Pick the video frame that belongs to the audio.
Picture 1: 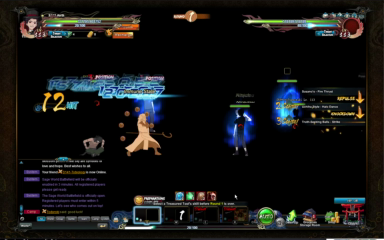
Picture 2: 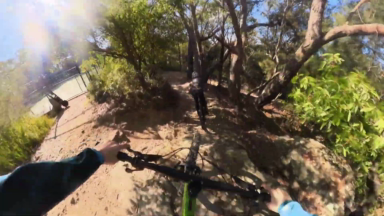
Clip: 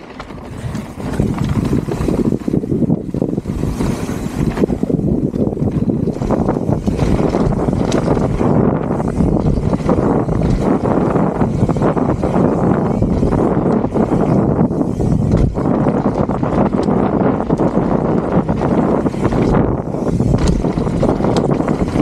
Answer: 2